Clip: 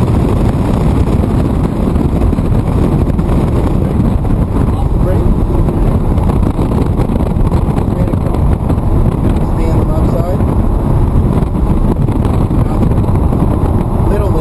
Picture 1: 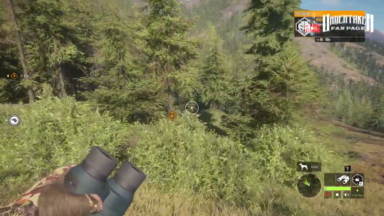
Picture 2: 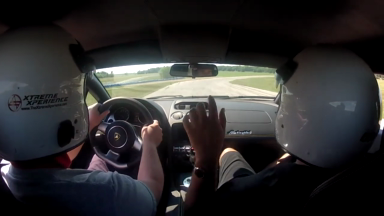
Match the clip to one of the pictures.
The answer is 2